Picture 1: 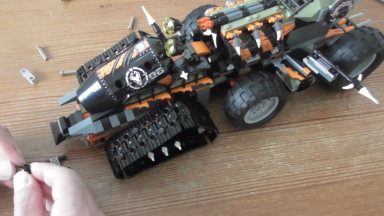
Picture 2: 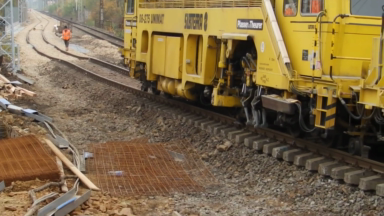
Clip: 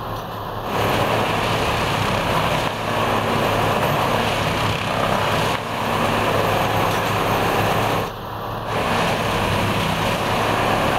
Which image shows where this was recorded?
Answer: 2